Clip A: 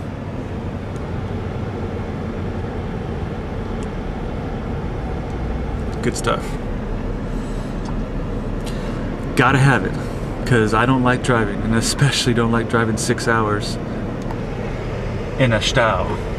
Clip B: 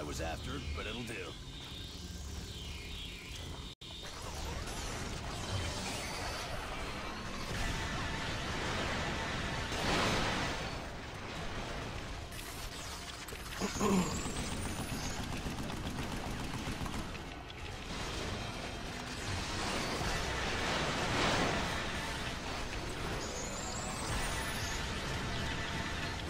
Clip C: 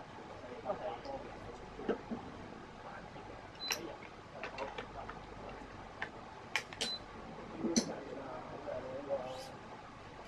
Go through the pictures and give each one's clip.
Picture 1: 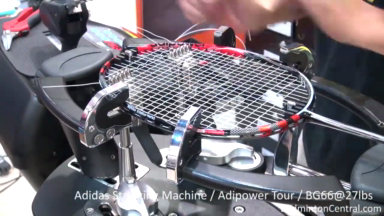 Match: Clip C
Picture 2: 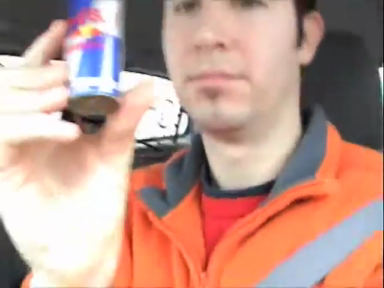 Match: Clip A